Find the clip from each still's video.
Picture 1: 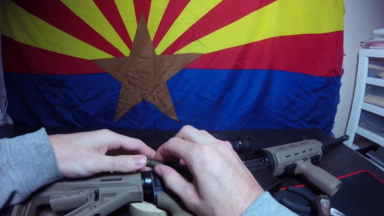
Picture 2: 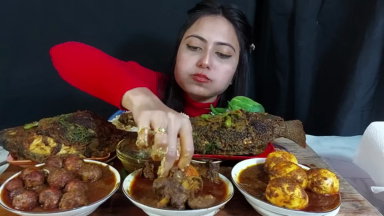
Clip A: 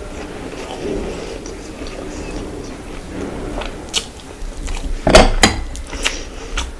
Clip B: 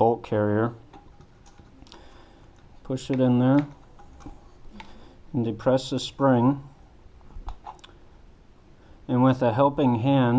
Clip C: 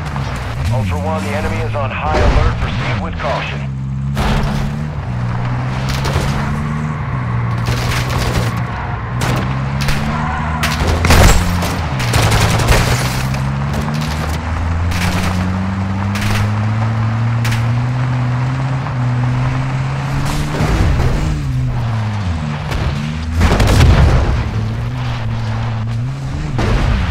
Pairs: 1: B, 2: A